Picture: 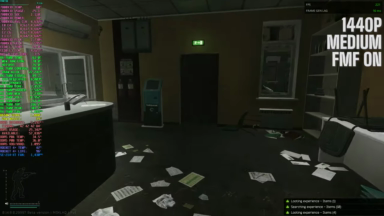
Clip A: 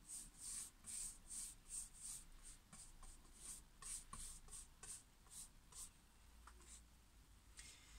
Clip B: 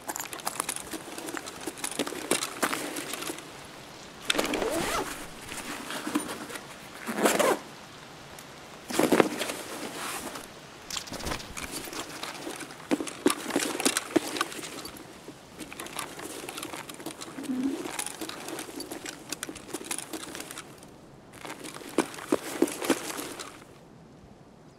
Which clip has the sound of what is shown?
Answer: B